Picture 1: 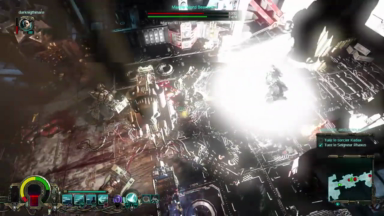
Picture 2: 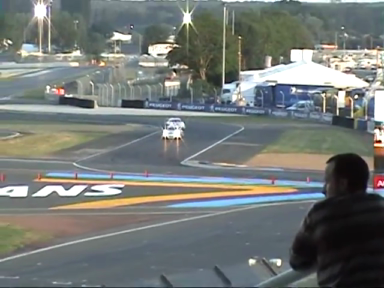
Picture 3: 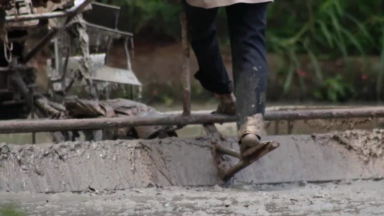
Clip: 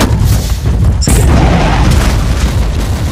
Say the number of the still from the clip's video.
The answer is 1